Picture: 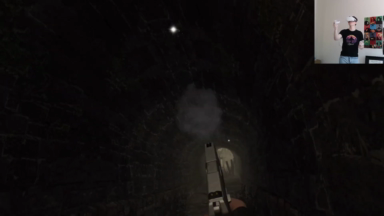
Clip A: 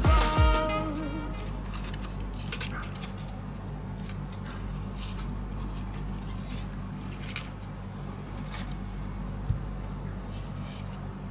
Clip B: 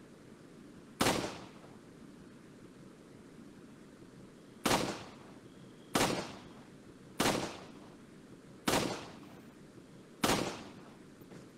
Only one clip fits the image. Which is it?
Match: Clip B